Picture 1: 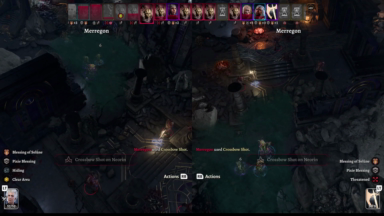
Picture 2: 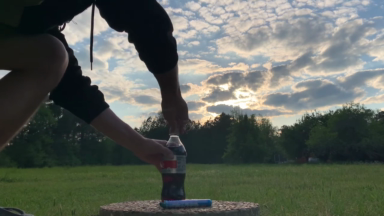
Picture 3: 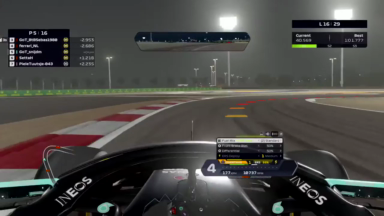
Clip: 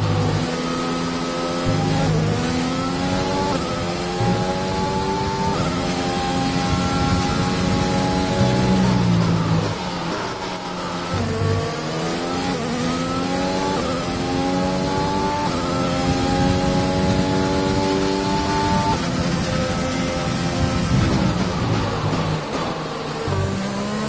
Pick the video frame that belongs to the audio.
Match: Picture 3